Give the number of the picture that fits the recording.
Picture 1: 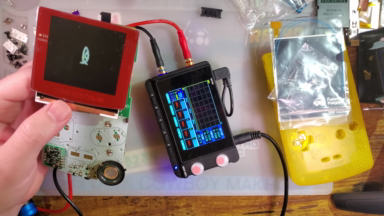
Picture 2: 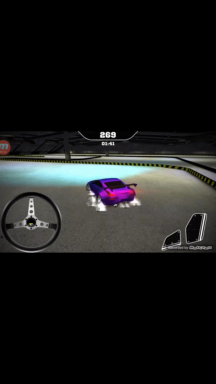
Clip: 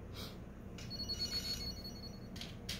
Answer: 1